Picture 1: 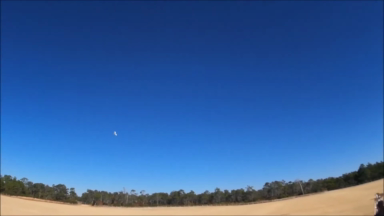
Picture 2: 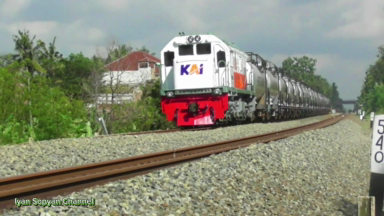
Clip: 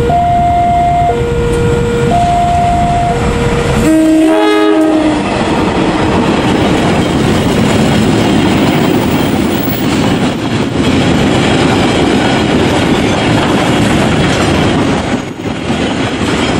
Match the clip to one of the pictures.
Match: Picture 2